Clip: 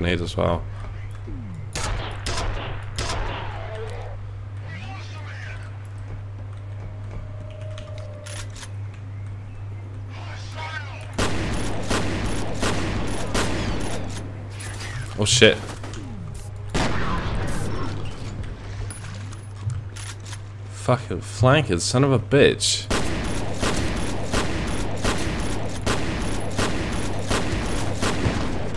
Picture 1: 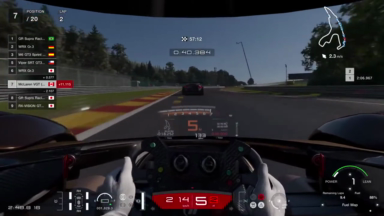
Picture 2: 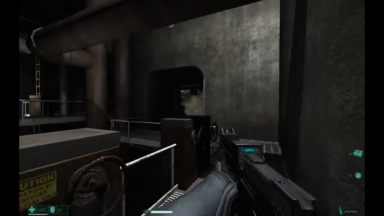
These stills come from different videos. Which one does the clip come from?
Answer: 2